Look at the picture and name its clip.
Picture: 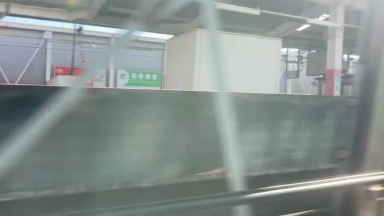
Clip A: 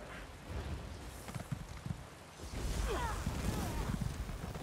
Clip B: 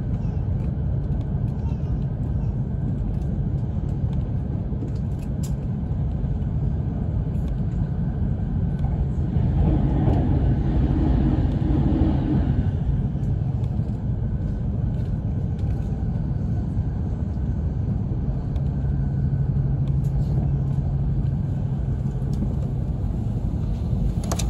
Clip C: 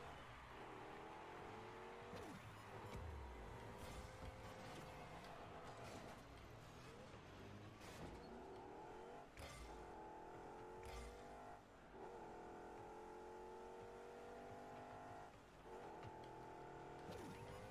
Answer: B